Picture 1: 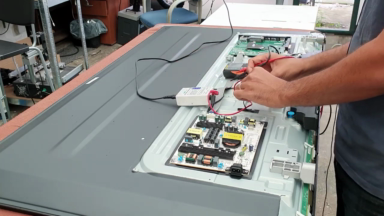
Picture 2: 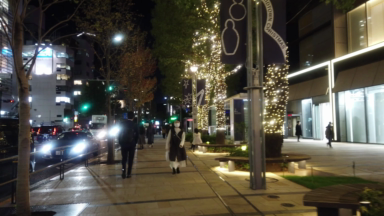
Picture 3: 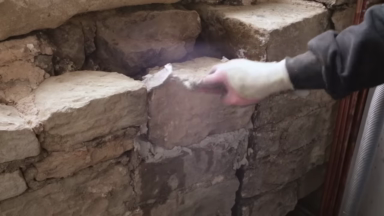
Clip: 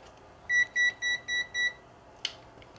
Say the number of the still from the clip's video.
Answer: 1